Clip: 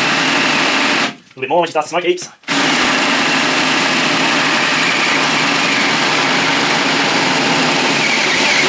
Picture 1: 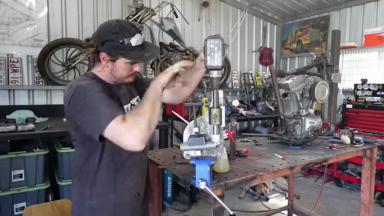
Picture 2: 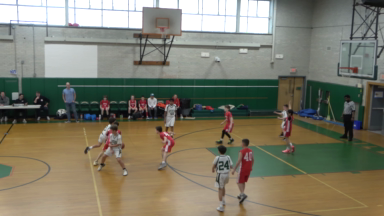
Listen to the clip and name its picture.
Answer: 1